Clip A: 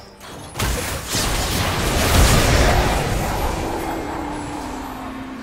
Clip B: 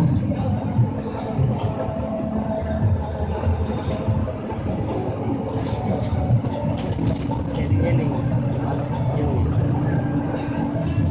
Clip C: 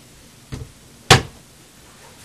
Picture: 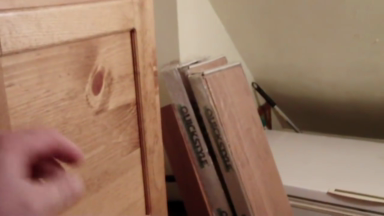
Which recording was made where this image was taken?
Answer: C